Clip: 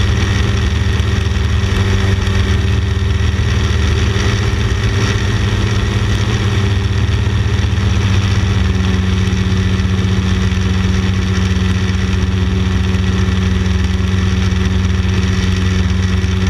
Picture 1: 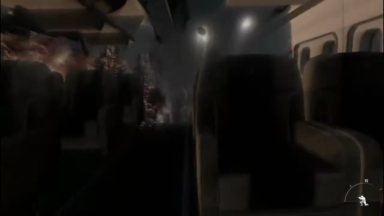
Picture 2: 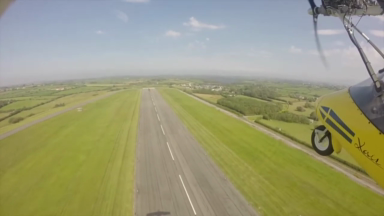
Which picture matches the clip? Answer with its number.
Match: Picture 2